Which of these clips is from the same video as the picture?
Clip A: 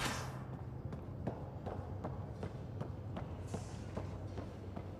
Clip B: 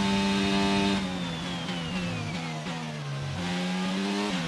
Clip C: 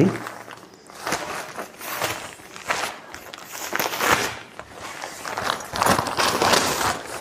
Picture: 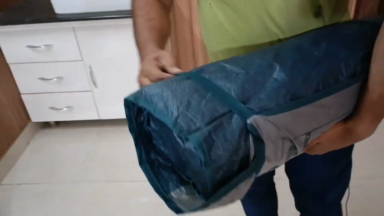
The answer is C